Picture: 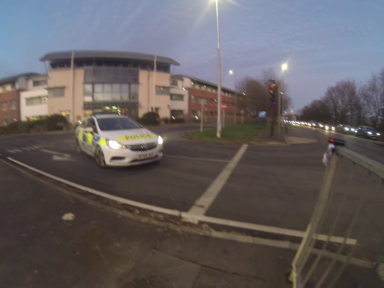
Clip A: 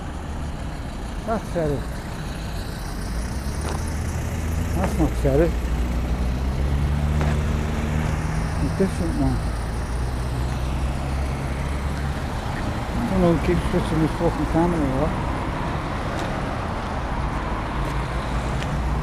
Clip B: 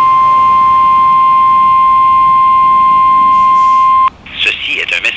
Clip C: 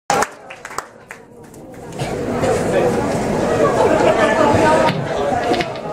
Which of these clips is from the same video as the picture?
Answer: A